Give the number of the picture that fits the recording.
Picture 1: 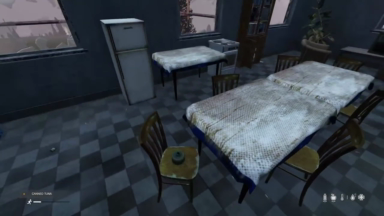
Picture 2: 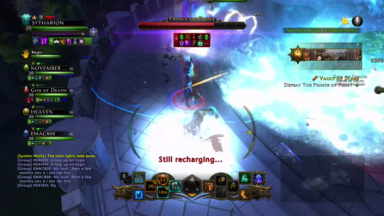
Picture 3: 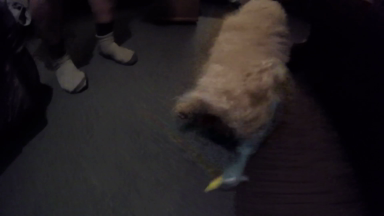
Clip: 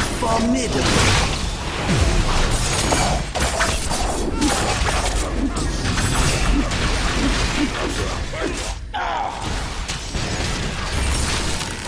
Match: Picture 2